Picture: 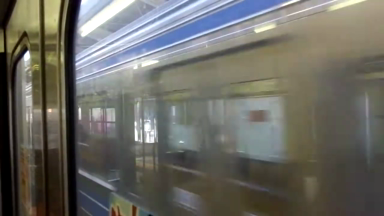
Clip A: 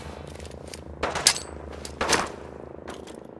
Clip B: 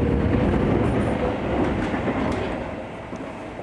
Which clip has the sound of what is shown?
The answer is B